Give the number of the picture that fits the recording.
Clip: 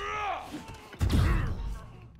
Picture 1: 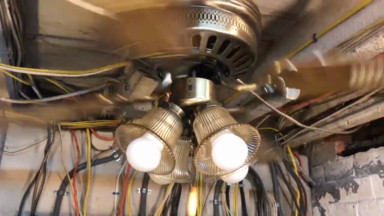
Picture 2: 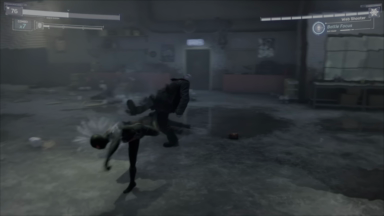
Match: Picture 2